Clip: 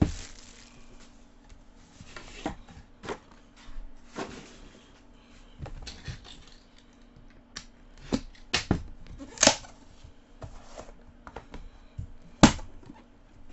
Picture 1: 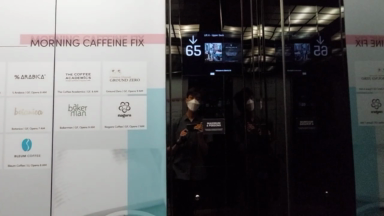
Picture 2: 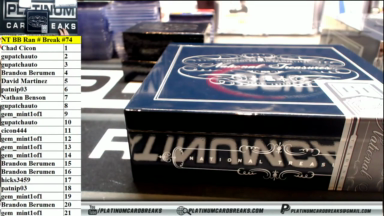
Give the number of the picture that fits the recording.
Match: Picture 2